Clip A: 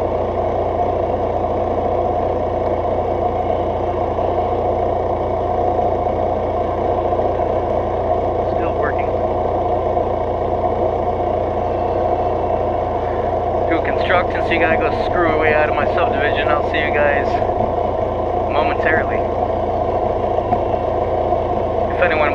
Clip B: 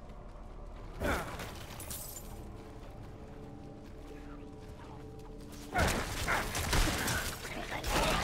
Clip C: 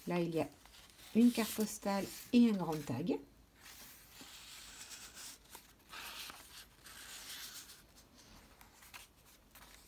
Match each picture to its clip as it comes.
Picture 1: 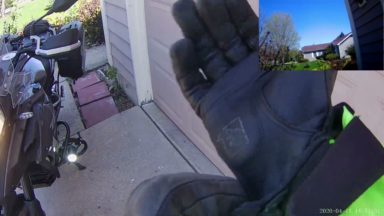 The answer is A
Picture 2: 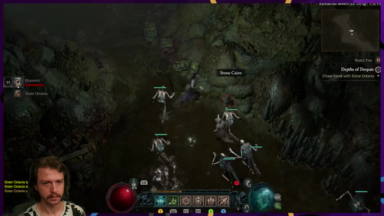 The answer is B